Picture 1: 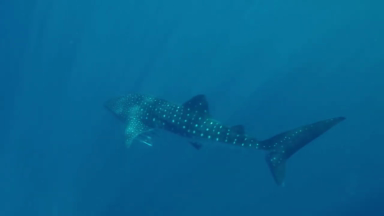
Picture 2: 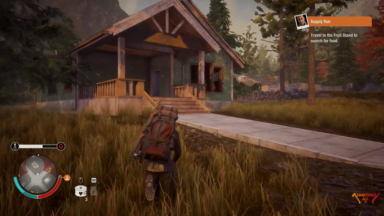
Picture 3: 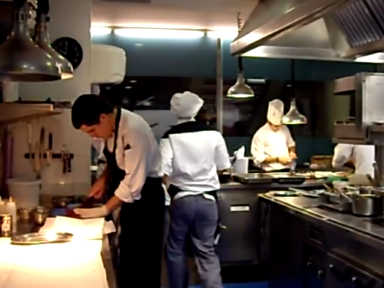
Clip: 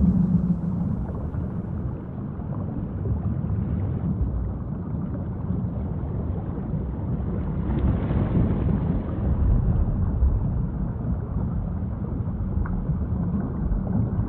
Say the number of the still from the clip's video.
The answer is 1